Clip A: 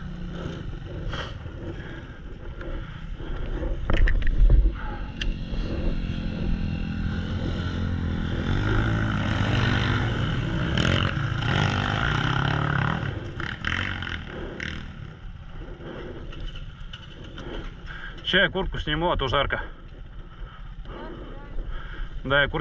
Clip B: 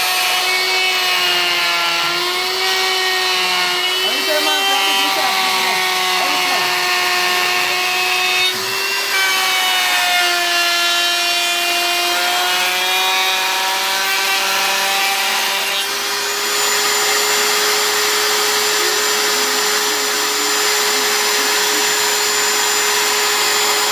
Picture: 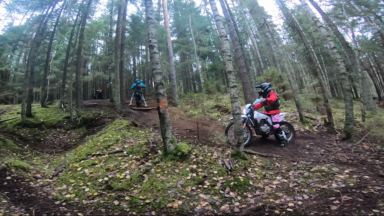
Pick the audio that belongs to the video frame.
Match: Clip A